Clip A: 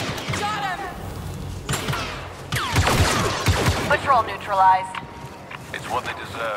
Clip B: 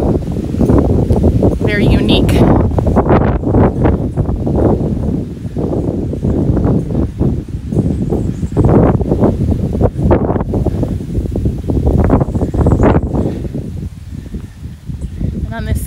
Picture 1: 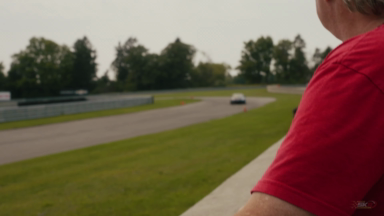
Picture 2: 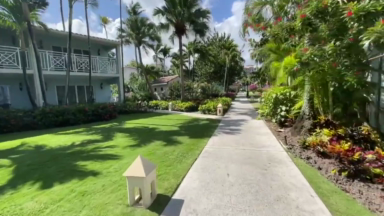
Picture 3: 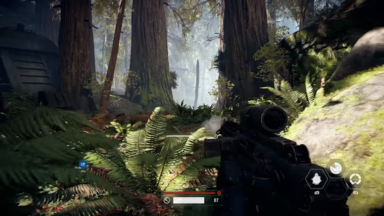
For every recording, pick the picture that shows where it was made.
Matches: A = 3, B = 2